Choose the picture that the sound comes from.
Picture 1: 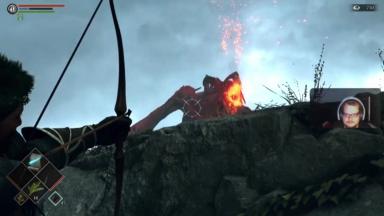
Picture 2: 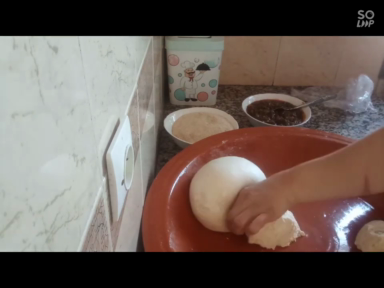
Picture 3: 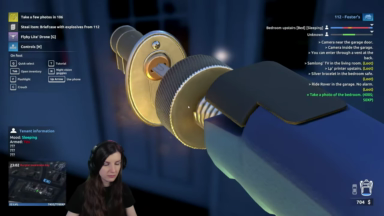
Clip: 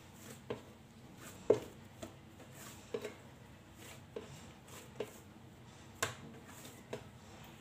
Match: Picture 2